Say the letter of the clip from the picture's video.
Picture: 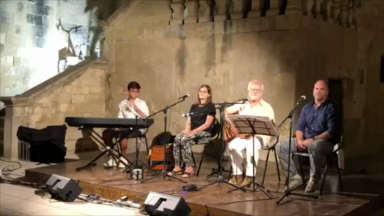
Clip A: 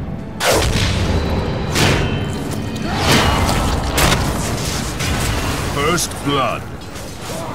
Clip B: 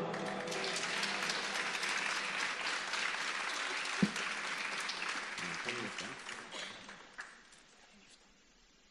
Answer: B